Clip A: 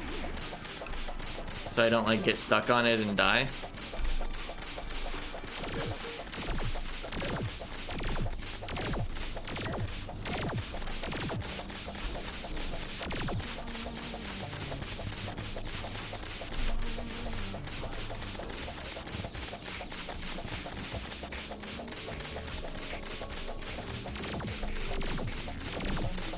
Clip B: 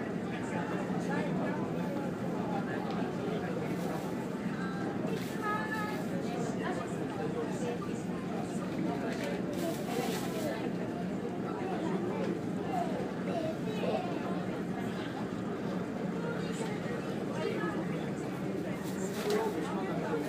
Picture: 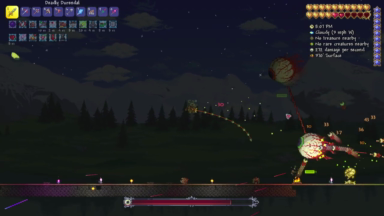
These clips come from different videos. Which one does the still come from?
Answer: A